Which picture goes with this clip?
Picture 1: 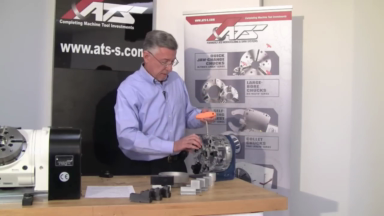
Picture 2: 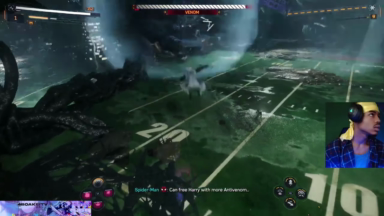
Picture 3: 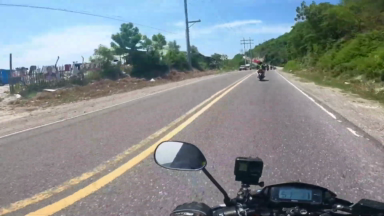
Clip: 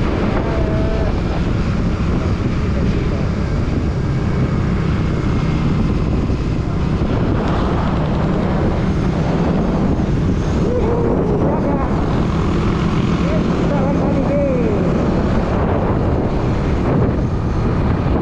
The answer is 3